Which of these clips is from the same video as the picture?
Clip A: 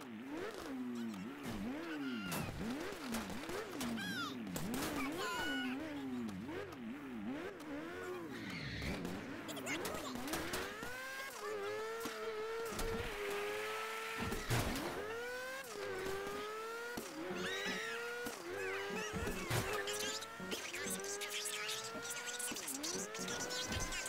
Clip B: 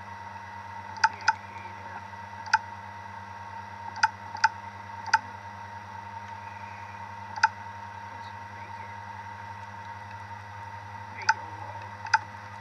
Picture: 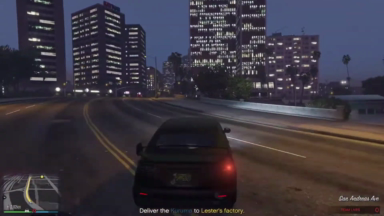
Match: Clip A